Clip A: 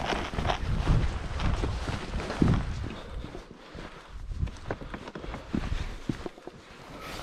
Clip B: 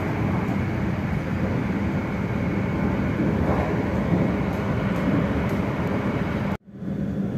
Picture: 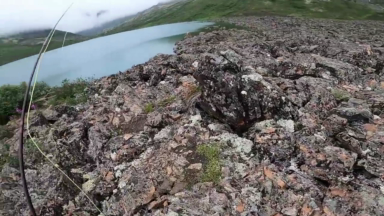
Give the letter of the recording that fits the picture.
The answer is A